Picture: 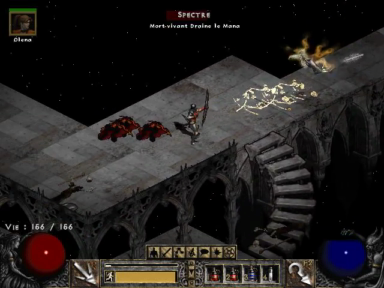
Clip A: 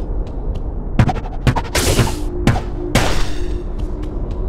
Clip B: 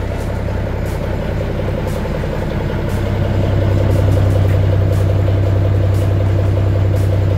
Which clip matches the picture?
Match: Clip A